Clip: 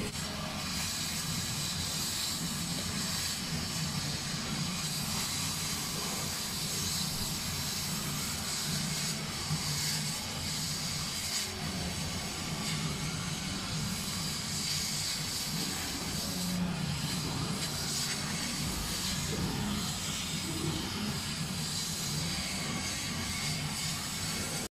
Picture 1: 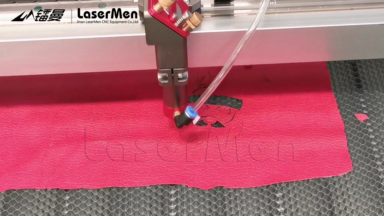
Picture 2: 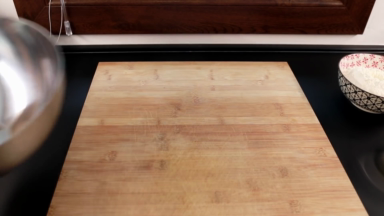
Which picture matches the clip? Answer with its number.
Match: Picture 1